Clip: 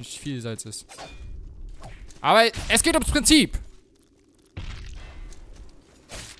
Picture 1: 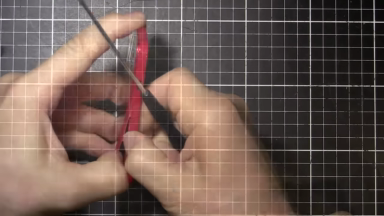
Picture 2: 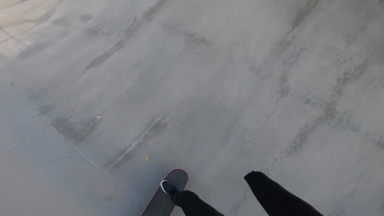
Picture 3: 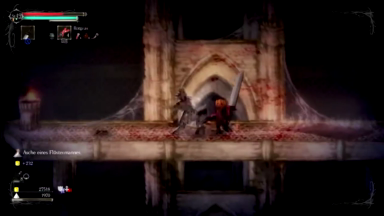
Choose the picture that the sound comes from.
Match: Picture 3